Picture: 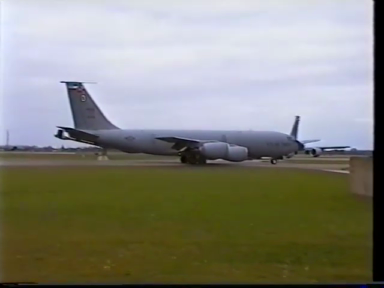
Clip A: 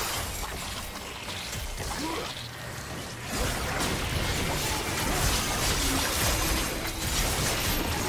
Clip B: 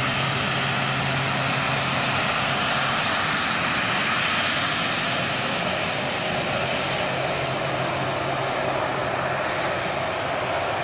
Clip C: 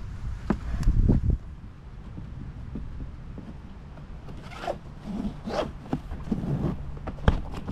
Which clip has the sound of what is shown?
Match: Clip B